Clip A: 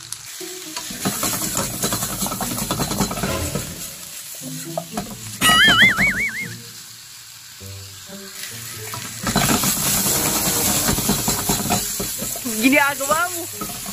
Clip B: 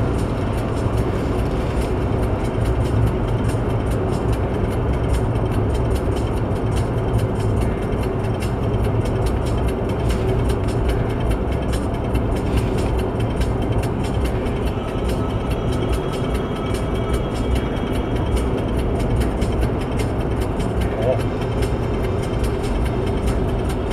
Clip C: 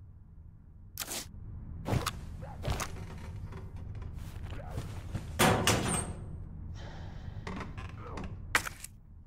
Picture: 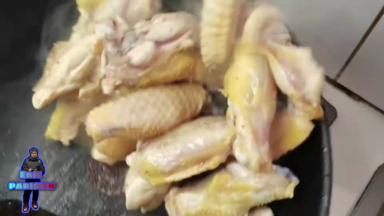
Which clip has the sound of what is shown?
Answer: A